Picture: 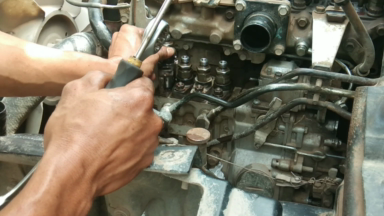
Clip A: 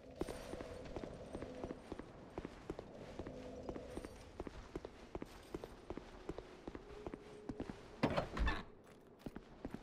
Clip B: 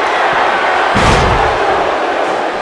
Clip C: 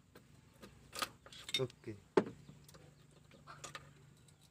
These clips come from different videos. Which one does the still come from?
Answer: C